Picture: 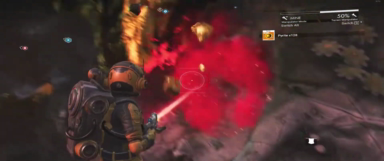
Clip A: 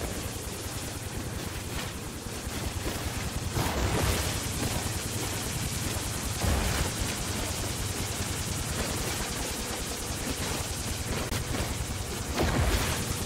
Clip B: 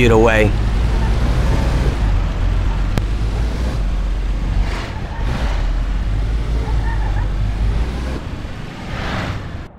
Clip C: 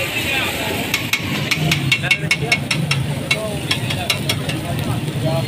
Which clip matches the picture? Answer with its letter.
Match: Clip A